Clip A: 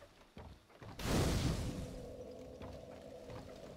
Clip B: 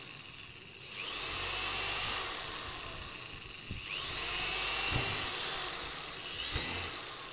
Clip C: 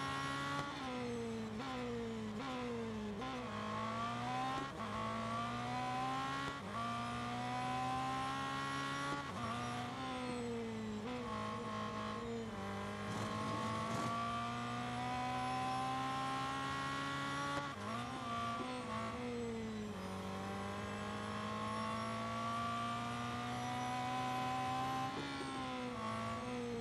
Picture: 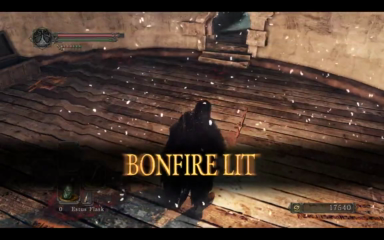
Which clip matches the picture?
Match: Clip A